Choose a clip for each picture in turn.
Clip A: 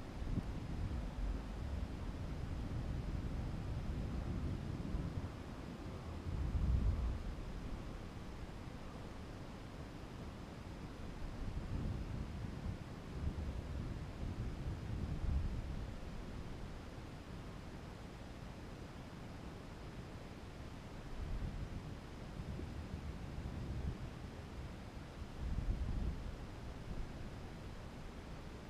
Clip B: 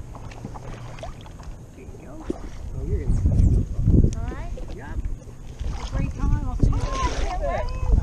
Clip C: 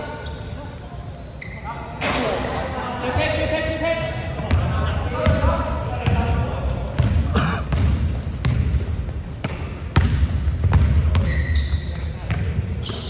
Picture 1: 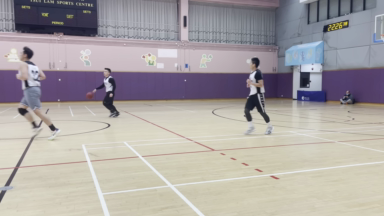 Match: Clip C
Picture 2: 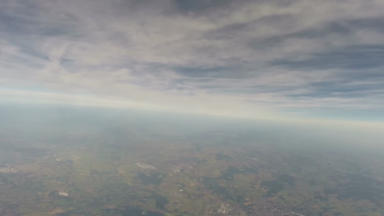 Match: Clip A